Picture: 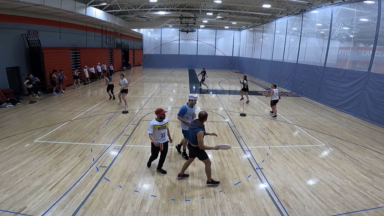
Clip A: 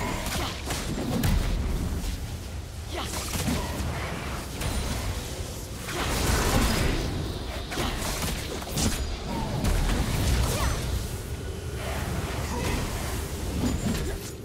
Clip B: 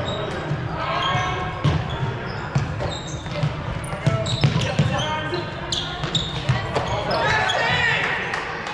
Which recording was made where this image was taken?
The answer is B